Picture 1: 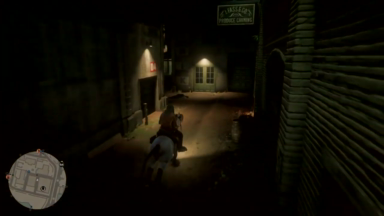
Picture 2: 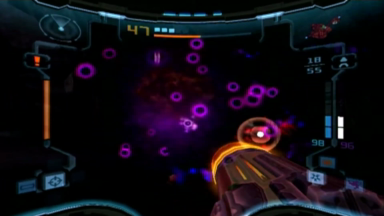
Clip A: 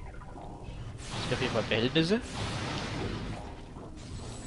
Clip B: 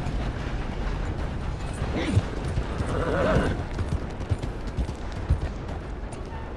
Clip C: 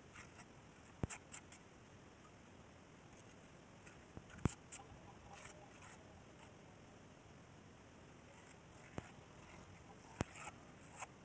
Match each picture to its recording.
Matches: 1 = B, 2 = A